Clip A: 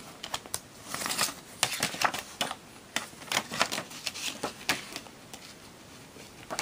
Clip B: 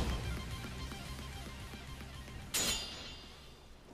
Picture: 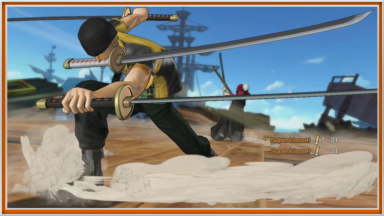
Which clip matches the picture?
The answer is B